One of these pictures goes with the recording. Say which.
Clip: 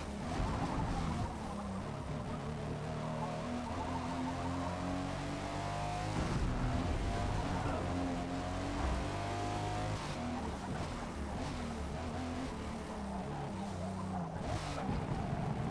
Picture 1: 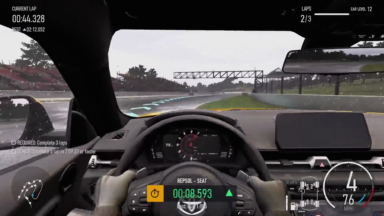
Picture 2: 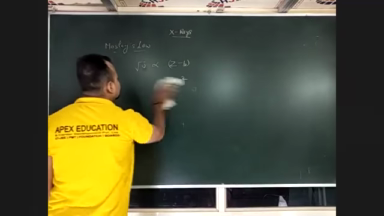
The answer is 1